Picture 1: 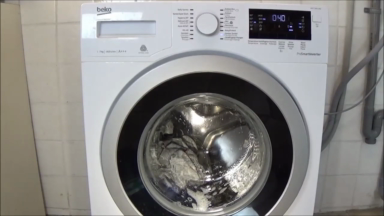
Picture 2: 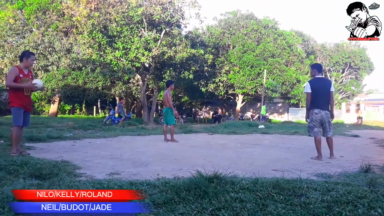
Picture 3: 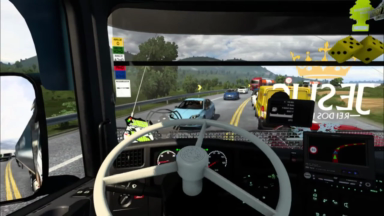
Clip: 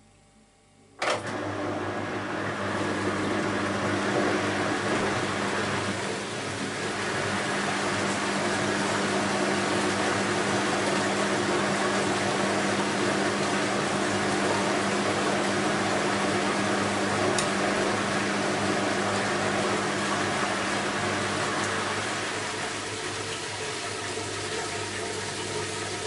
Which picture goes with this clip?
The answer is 1